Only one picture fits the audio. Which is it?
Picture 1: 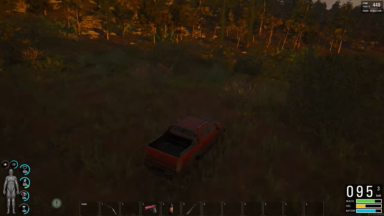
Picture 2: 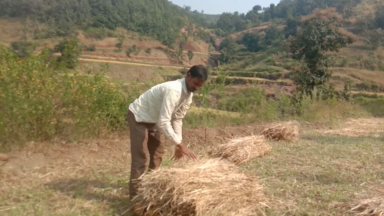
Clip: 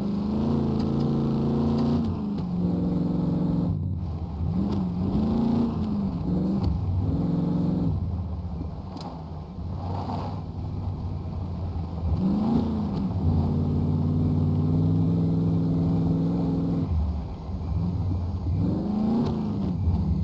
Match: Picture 1